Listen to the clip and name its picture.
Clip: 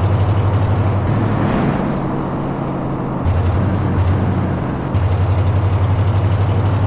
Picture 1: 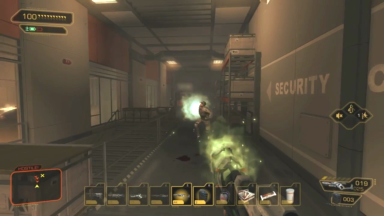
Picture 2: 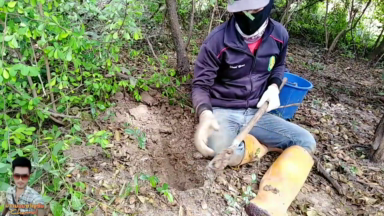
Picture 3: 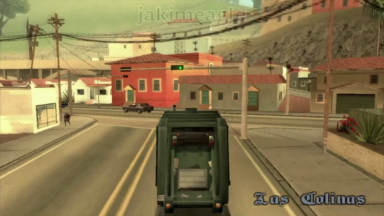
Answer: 3